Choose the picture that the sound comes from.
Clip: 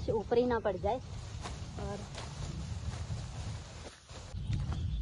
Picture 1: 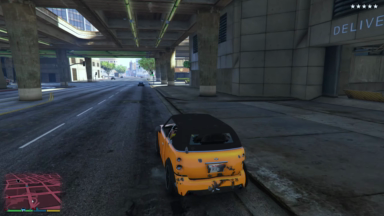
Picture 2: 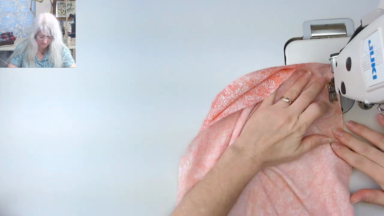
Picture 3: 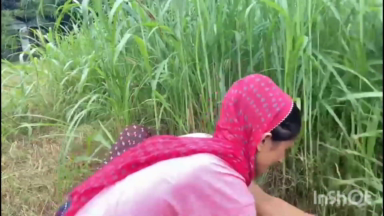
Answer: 3